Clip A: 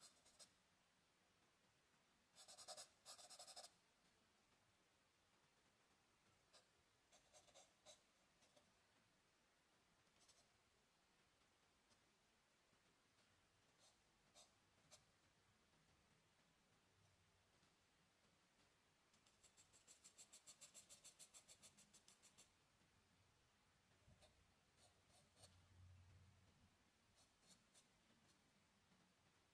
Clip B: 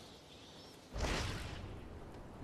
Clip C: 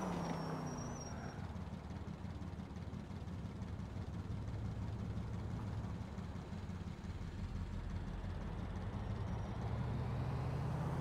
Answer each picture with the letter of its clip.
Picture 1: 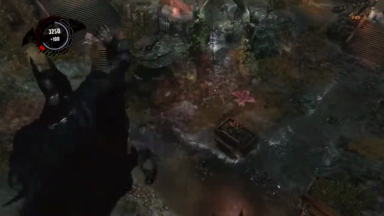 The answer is B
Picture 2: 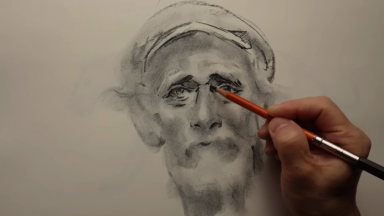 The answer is A